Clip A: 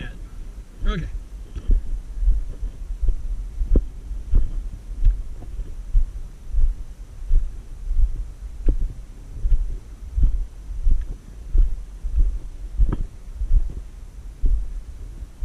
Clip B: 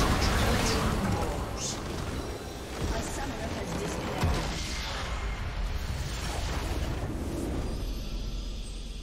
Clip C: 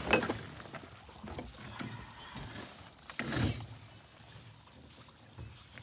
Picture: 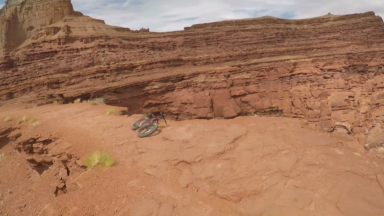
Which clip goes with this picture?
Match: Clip A